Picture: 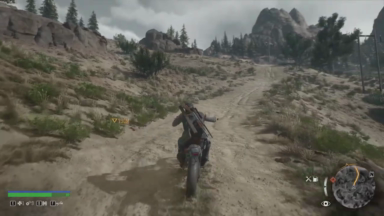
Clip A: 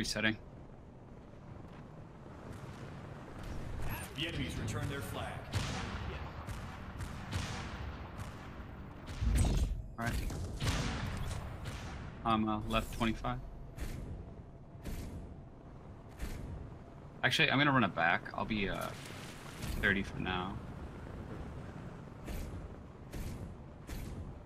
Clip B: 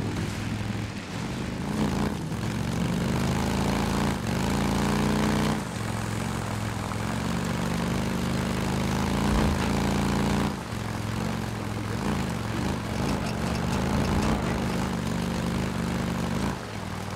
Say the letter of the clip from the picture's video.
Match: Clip B